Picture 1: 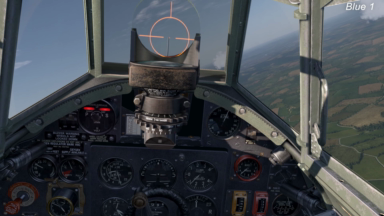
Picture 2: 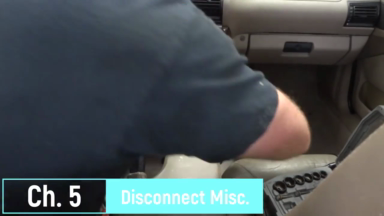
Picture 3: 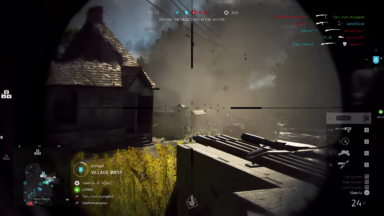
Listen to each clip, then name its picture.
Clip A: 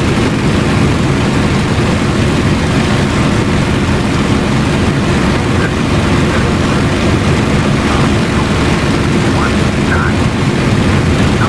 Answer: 1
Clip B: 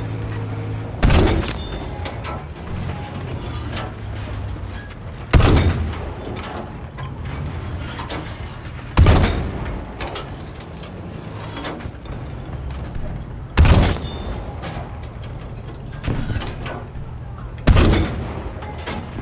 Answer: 3